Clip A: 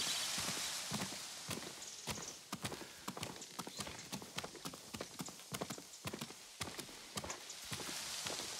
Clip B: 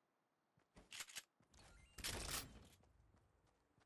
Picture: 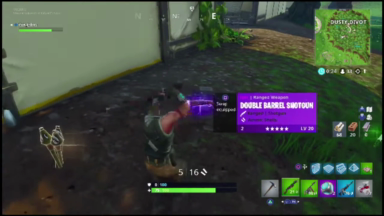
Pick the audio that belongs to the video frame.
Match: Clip B